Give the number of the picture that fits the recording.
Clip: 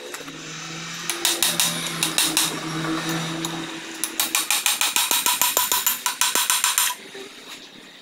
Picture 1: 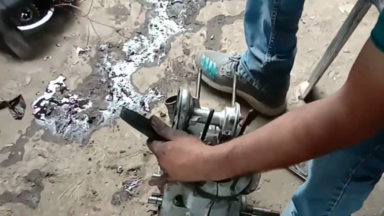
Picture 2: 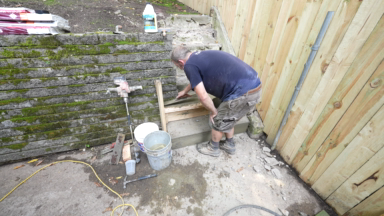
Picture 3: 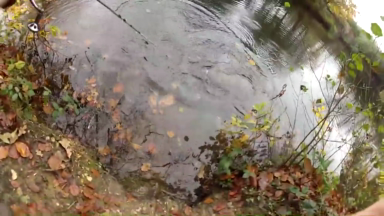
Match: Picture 1